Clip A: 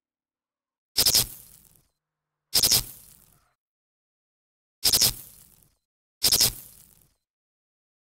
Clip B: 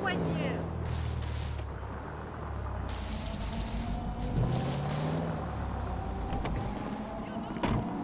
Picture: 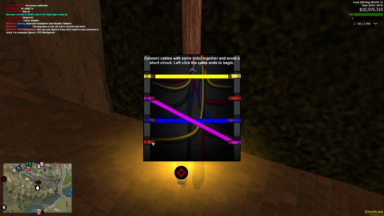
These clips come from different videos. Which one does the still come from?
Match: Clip A